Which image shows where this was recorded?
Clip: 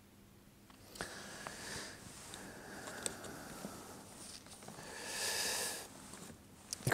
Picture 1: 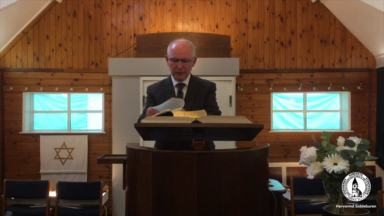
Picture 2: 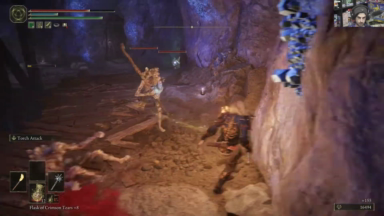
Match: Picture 1